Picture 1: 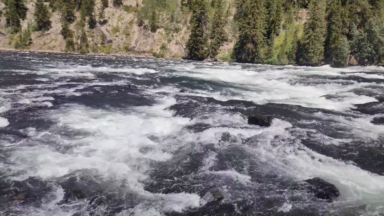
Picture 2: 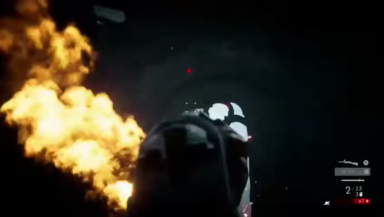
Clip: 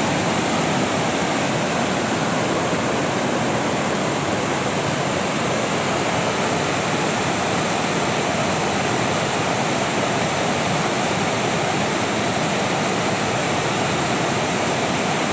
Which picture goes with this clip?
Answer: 1